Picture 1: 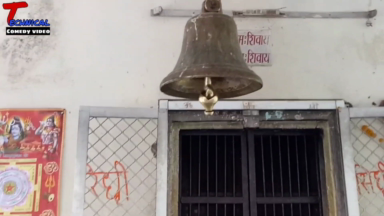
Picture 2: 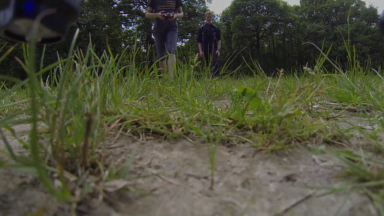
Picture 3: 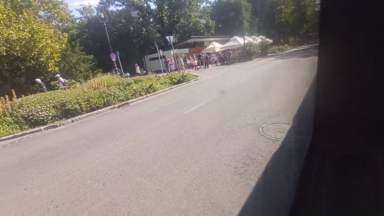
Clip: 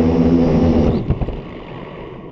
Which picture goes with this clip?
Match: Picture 2